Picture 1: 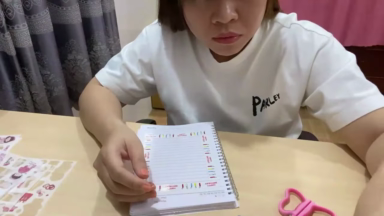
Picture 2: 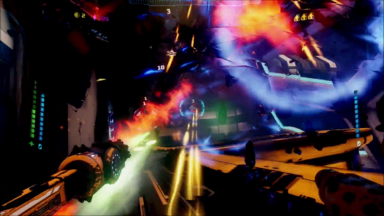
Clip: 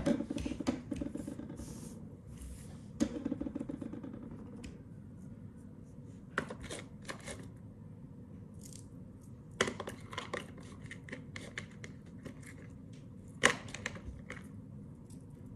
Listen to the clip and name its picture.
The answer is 1